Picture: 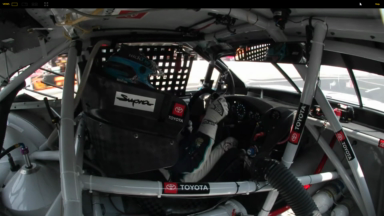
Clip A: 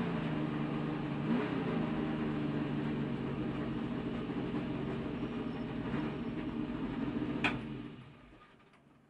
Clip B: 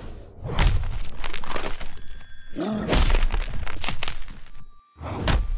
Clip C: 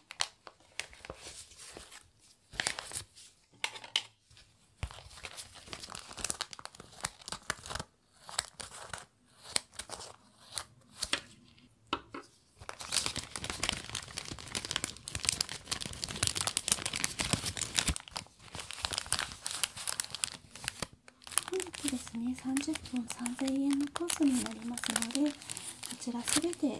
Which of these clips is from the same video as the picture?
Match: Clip A